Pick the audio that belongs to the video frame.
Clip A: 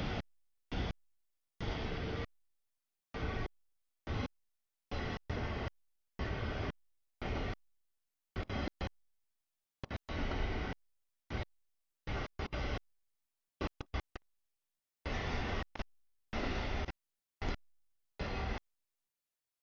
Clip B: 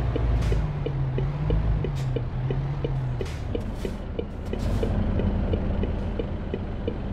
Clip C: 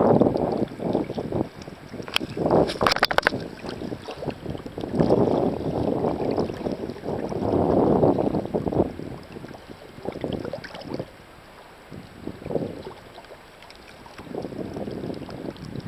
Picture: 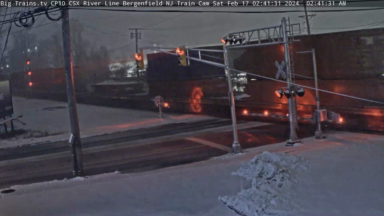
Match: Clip A